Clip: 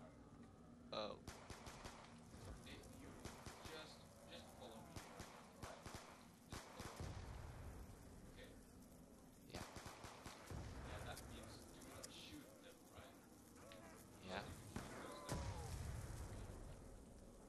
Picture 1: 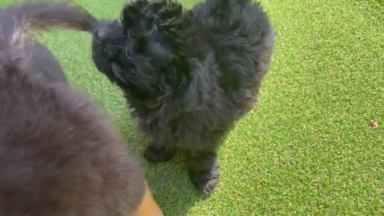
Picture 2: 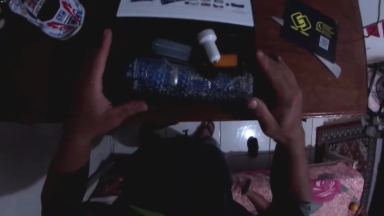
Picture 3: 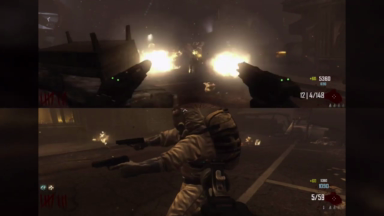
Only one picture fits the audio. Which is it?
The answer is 3